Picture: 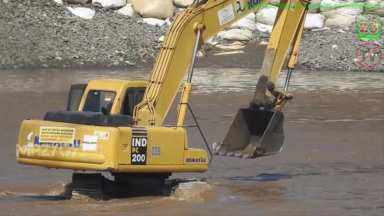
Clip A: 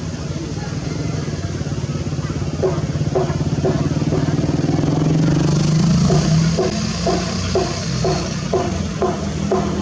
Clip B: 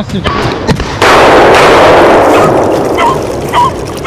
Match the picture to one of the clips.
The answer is A